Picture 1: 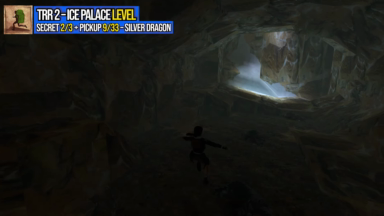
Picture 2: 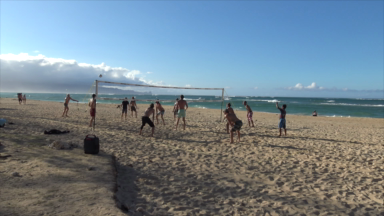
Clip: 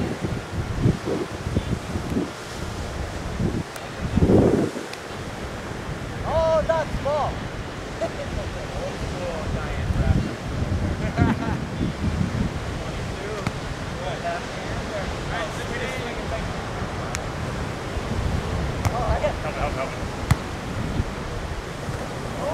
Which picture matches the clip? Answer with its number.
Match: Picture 2